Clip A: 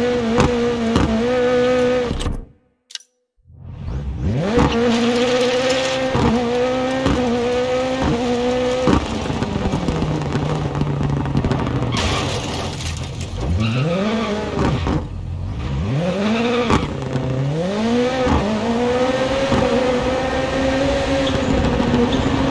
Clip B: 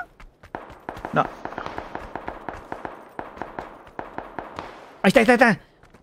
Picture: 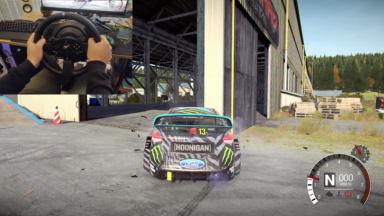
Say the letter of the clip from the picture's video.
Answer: A